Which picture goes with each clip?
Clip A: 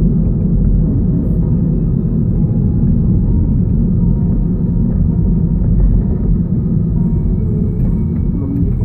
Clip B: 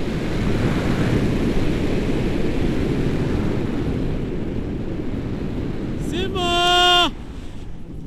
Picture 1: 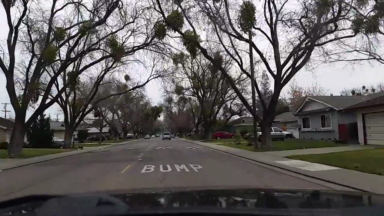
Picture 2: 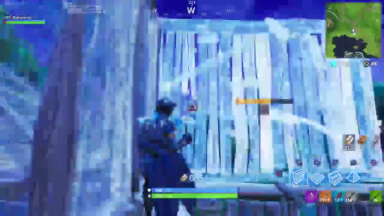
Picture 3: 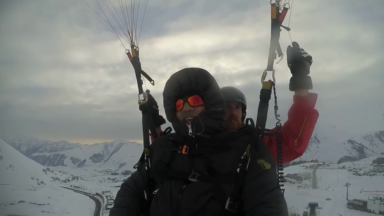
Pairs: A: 1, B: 3